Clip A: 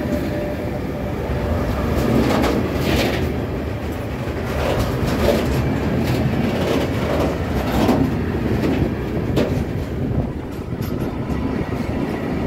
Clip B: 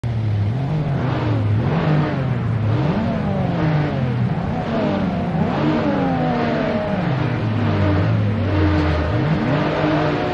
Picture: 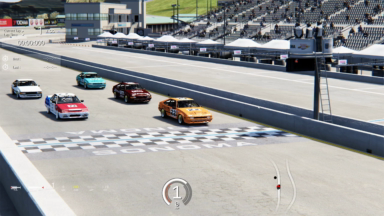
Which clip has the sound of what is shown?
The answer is B